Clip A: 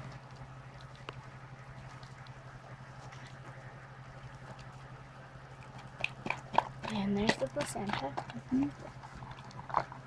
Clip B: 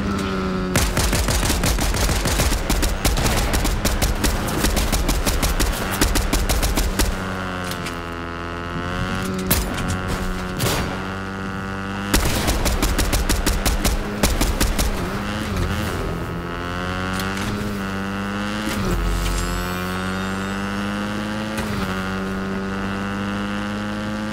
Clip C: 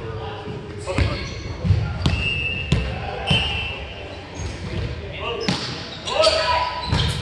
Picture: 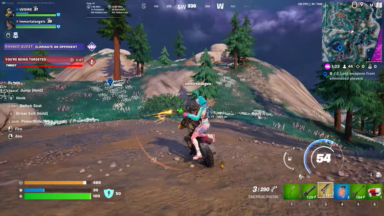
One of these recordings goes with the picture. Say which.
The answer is B